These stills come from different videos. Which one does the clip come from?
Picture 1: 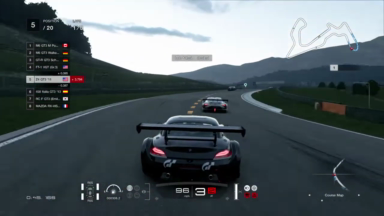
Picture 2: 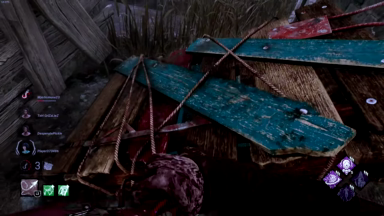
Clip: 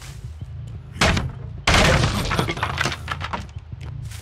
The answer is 2